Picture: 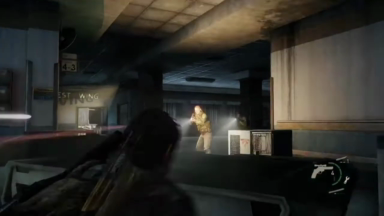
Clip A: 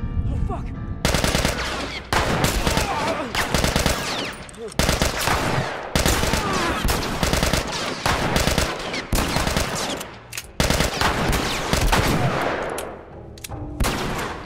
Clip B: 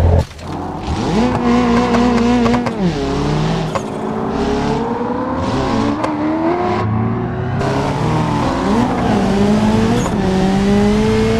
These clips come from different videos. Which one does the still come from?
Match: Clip A